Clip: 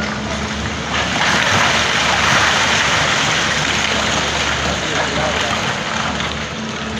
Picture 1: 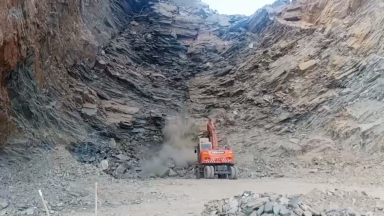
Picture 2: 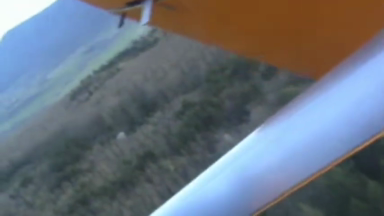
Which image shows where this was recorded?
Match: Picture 1